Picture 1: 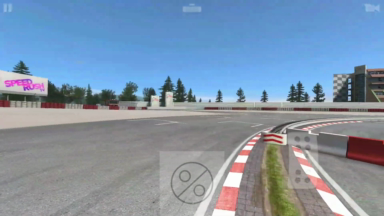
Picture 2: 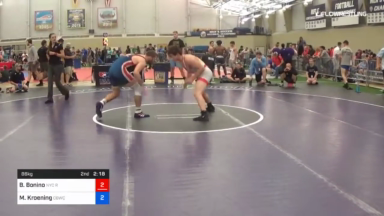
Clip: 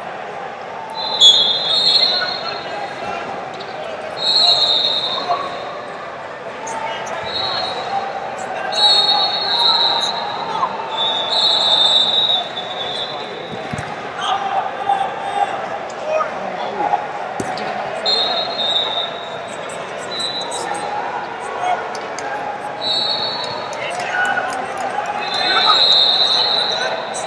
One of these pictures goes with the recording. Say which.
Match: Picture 2